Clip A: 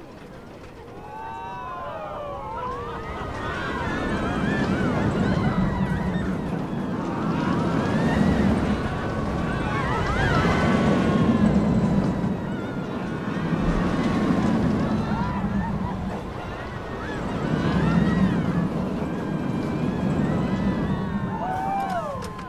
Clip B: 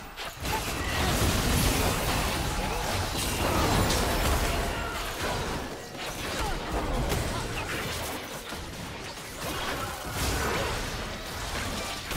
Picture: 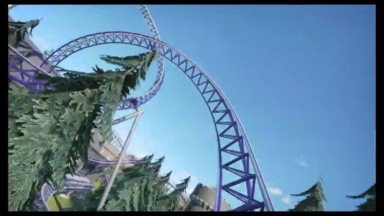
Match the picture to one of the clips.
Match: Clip A